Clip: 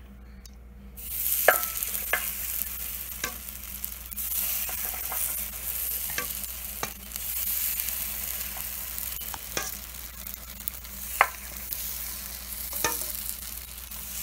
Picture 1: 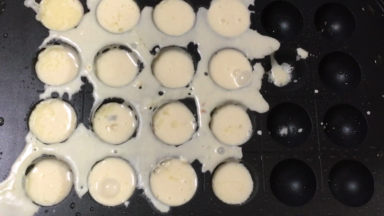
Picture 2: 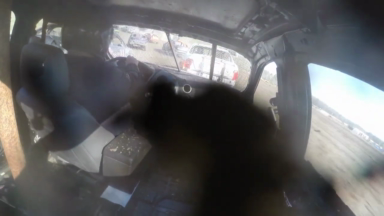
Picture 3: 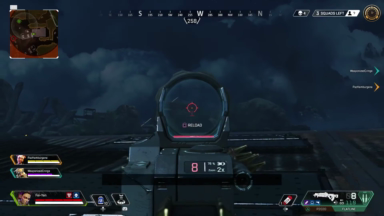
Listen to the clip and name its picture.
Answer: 1